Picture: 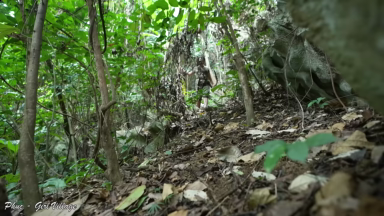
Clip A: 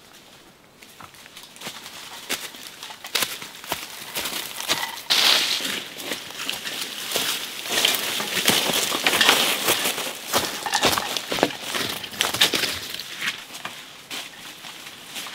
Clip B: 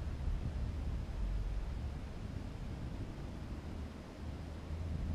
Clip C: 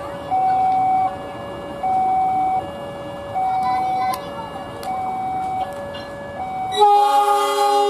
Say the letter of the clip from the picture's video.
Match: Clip A